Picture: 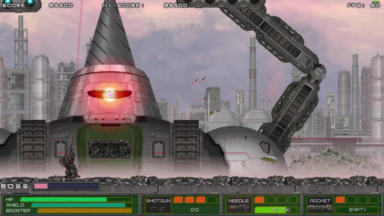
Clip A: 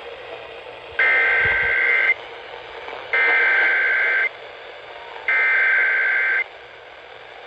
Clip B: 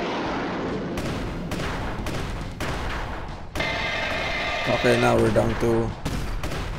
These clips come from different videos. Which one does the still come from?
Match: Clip B